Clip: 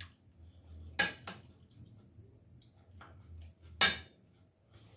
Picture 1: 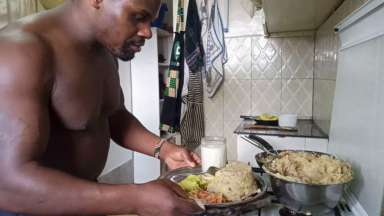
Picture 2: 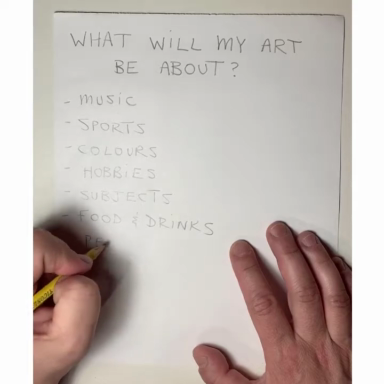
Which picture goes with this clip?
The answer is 1